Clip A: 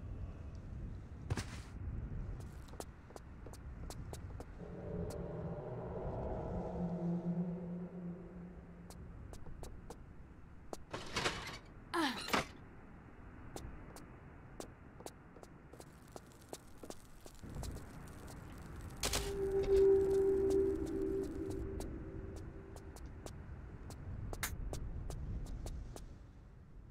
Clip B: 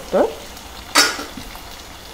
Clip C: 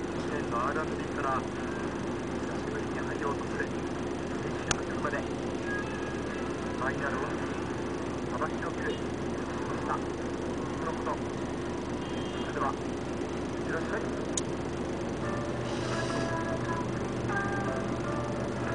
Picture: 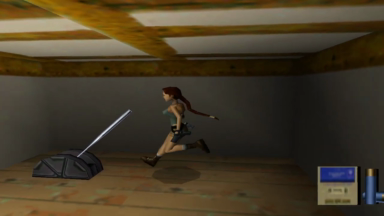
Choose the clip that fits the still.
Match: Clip A